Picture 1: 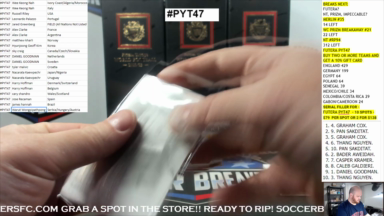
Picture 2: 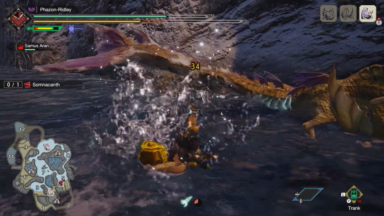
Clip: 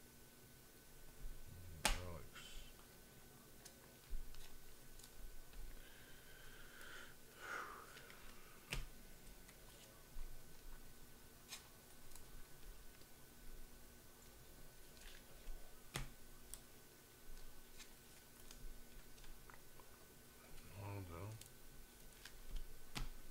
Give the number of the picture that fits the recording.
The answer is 1